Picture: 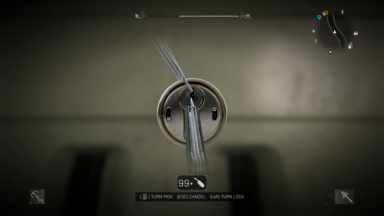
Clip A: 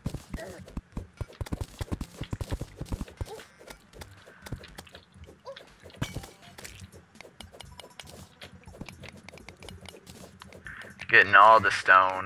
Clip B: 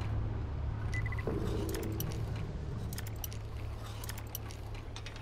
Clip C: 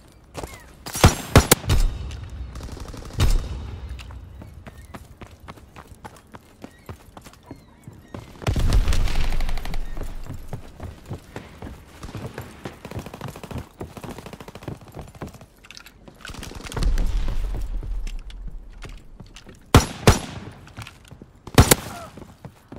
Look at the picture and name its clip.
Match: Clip B